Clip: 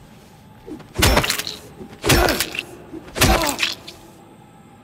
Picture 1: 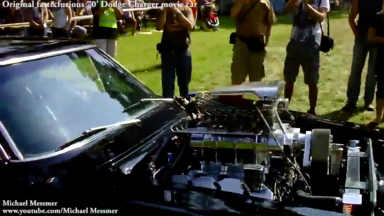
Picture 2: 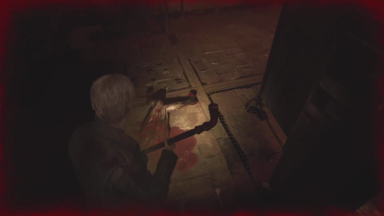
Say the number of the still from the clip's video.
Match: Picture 2